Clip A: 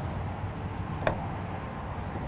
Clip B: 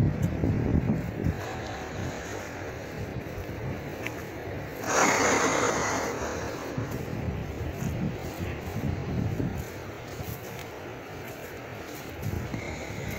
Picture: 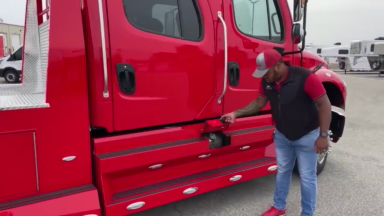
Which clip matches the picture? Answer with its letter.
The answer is A